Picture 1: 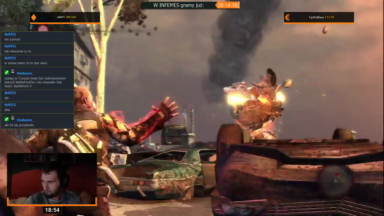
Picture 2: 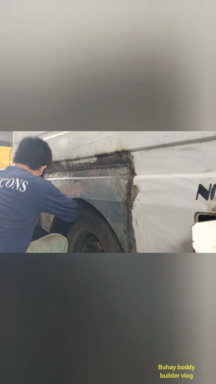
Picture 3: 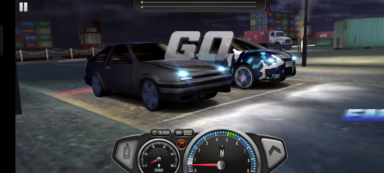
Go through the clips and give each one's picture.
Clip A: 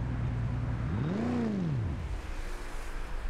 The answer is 3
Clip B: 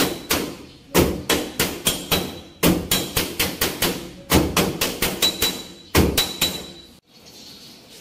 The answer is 2